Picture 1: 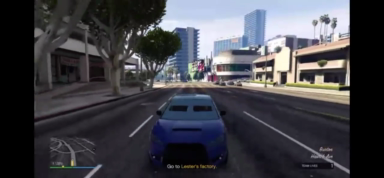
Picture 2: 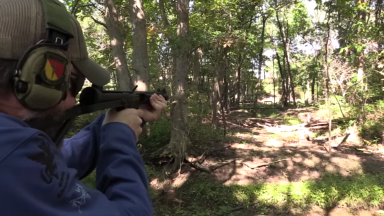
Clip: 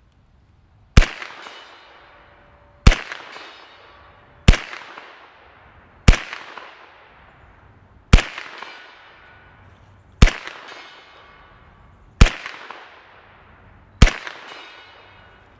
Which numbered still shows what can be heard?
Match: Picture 2